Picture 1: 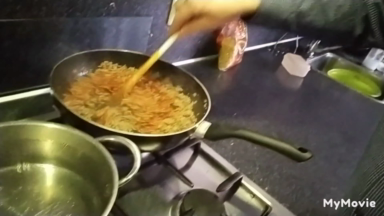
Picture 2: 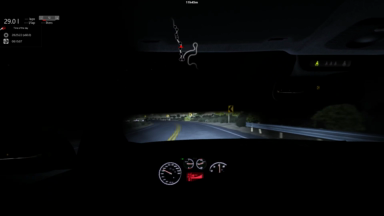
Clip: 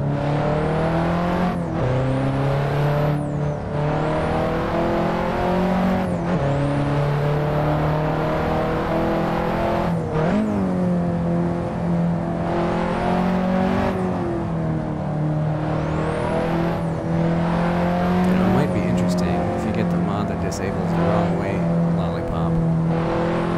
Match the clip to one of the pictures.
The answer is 2